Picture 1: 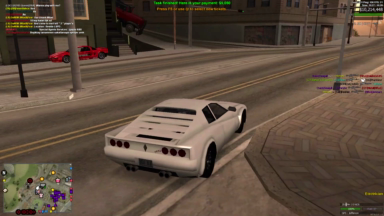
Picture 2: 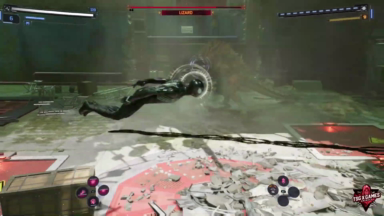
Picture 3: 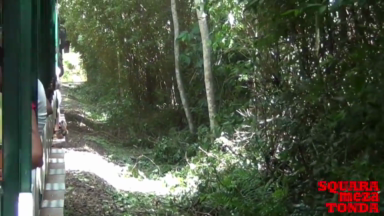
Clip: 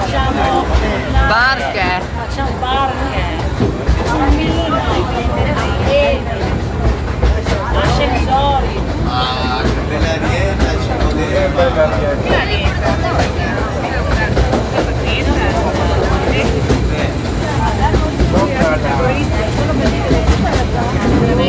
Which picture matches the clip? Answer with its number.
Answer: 3